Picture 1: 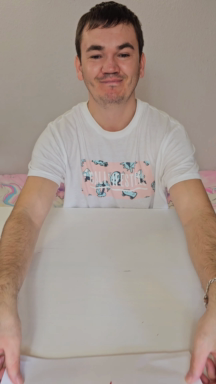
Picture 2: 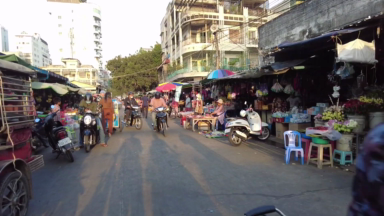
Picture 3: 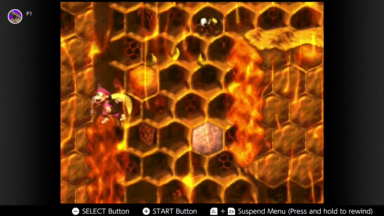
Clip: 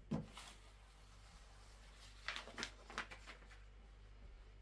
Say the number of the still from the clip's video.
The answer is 1